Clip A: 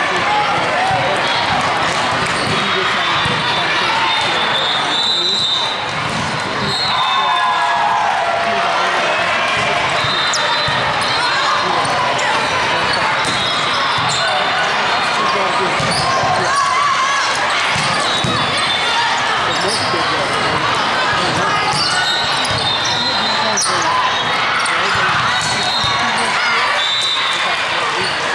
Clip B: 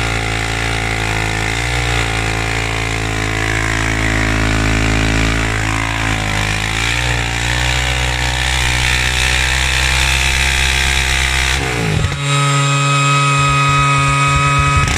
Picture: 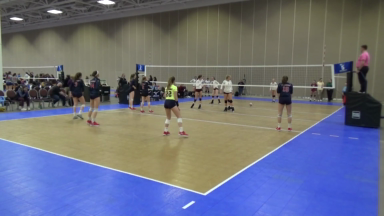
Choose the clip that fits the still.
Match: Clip A